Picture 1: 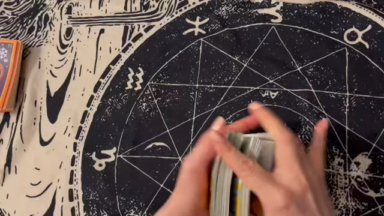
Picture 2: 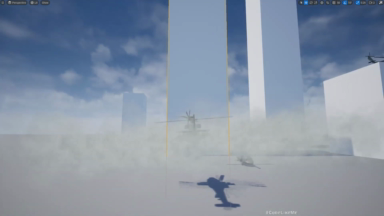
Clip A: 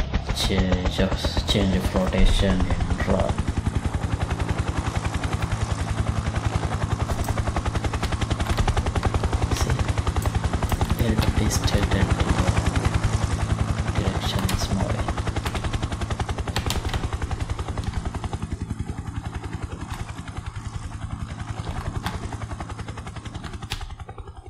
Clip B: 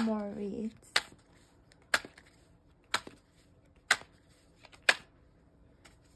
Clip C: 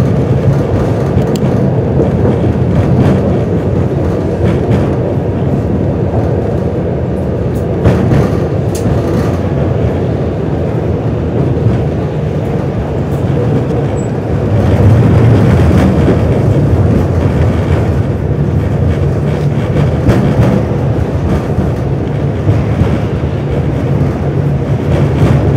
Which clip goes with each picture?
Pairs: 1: B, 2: A